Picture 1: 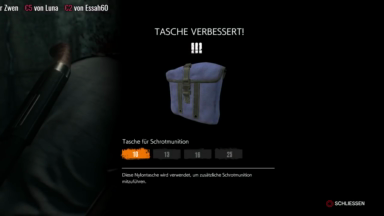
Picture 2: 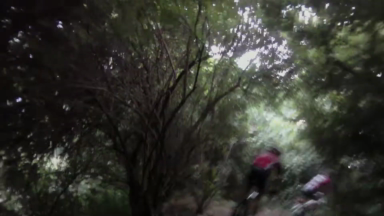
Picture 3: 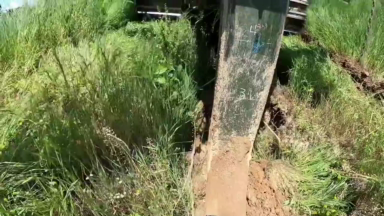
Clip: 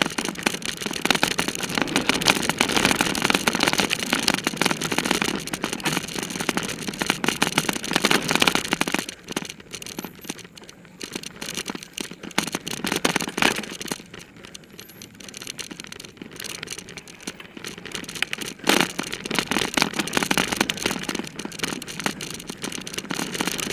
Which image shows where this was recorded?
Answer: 2